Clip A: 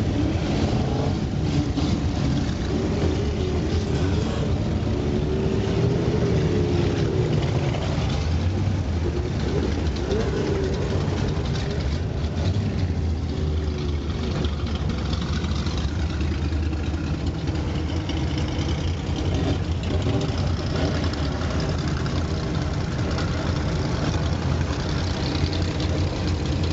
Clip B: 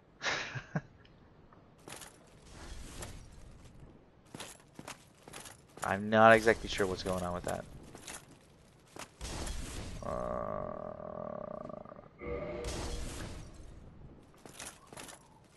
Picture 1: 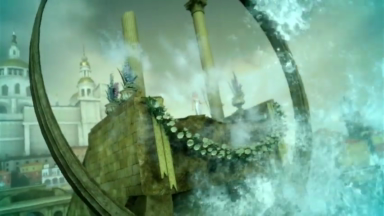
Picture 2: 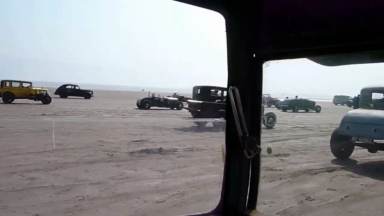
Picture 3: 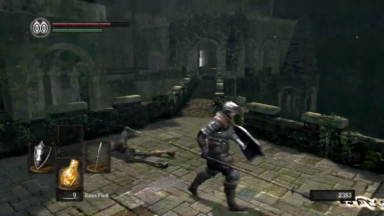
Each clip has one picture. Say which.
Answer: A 2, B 3